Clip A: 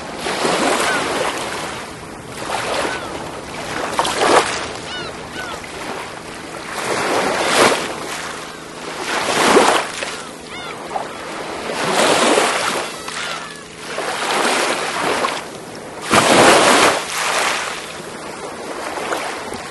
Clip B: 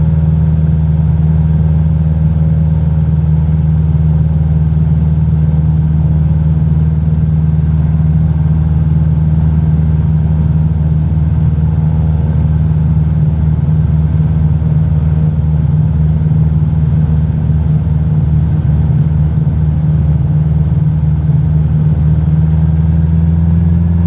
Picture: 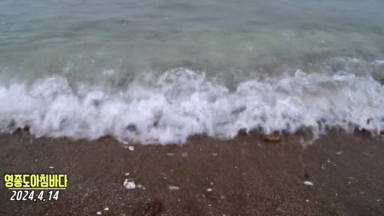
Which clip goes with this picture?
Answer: A